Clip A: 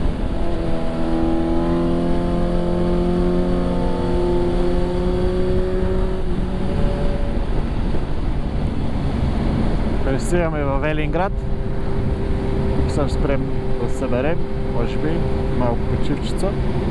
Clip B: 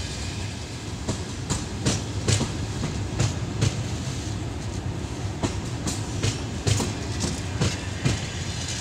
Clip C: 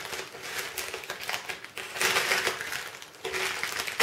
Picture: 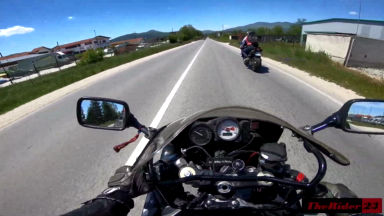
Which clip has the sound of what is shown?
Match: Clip A